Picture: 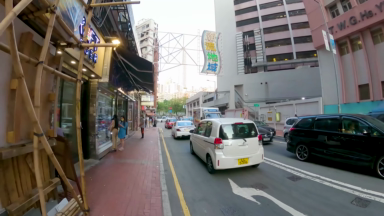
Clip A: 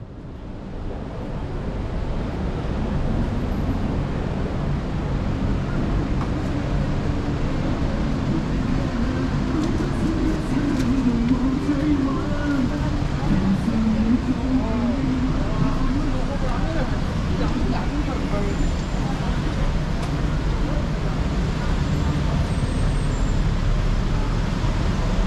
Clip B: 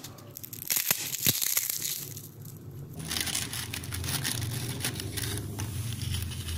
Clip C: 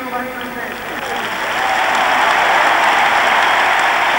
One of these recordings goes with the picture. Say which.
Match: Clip A